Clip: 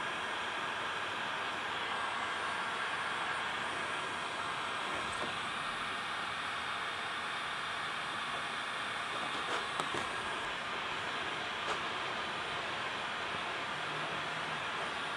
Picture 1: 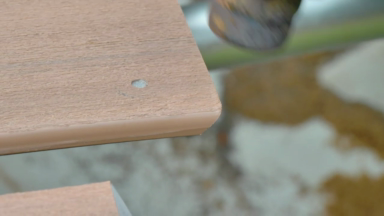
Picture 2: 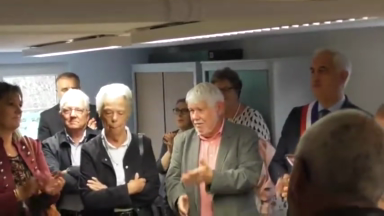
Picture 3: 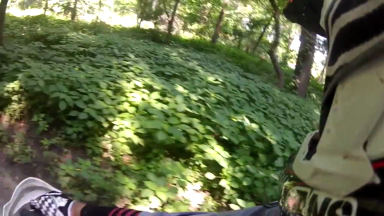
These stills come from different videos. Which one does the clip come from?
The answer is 1